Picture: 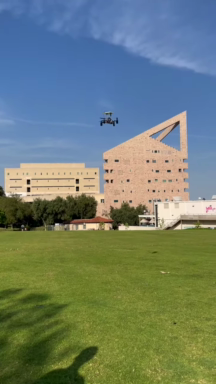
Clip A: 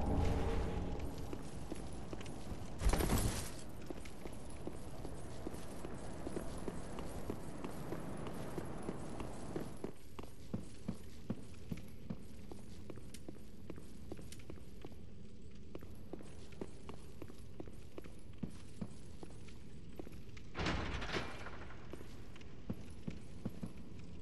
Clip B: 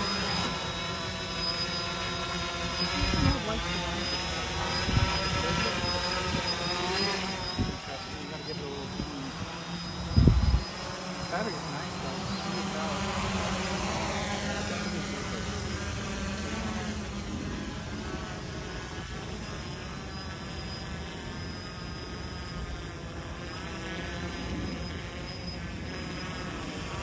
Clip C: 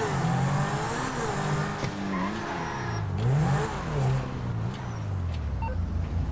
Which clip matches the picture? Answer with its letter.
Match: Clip B